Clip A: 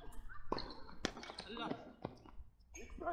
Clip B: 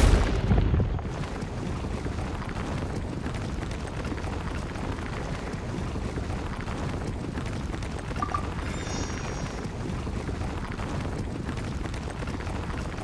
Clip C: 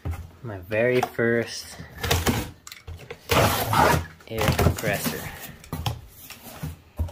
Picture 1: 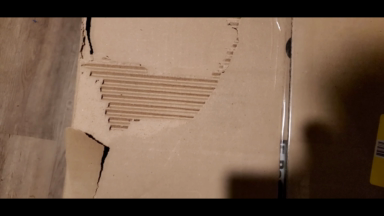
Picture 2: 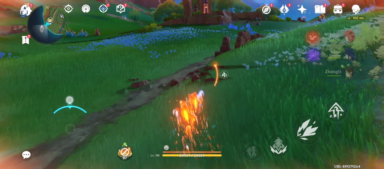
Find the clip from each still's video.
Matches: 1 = C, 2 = B